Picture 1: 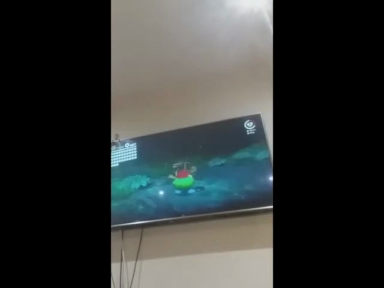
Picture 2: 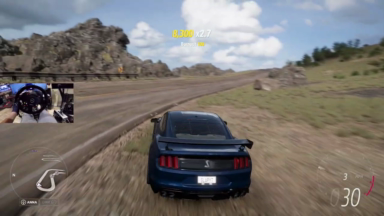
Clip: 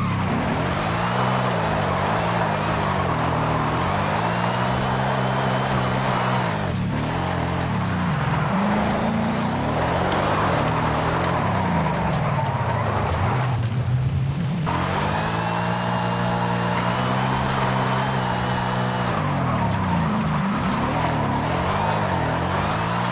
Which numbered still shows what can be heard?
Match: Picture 2